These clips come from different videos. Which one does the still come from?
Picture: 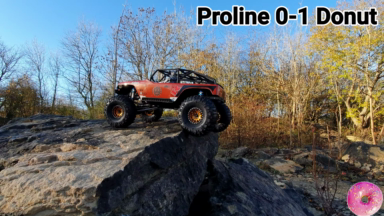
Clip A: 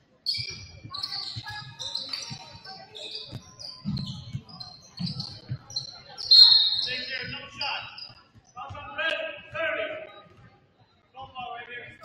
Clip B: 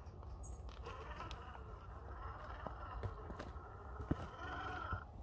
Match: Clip B